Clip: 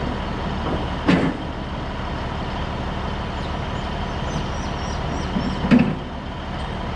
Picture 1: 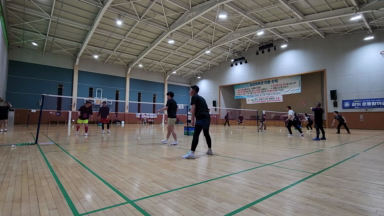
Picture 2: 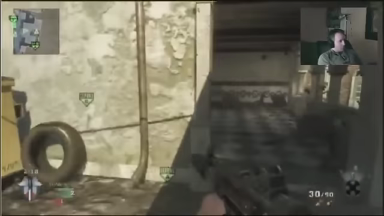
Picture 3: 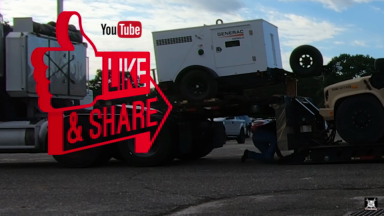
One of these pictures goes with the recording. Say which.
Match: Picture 3